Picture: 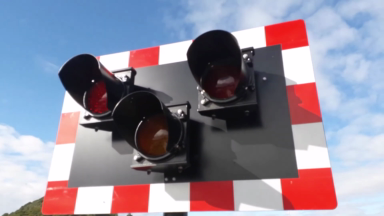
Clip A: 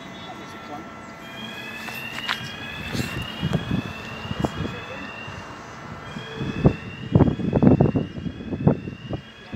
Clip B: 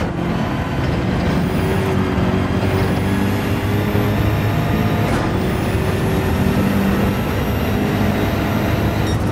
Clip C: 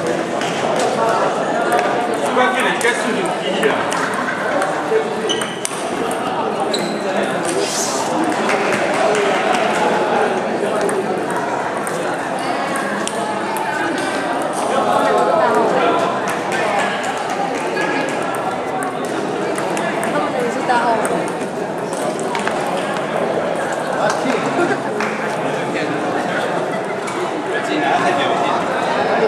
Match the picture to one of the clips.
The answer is A